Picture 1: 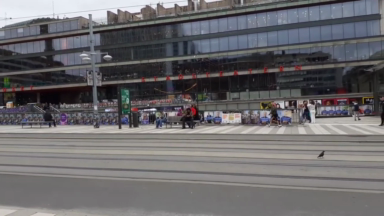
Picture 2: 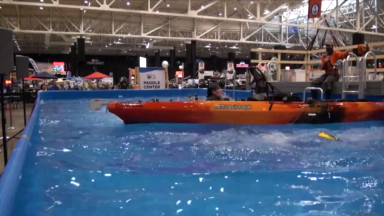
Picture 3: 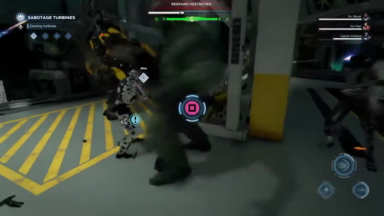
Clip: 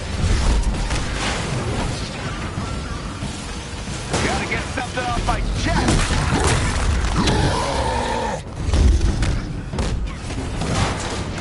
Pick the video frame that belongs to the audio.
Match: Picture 3